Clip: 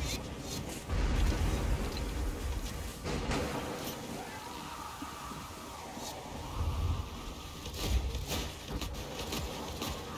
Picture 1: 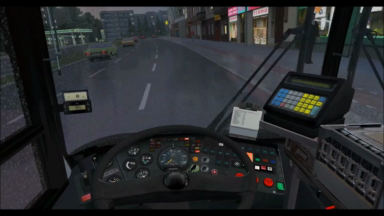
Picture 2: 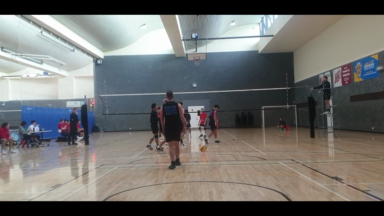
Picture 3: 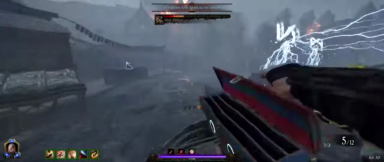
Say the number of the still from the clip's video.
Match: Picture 3